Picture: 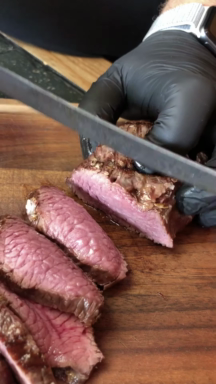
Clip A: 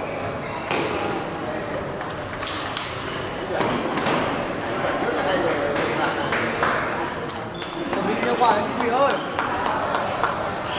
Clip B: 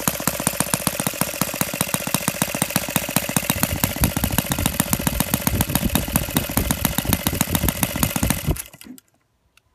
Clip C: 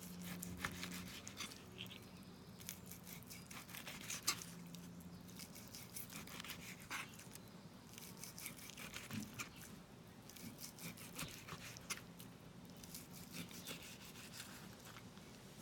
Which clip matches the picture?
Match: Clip C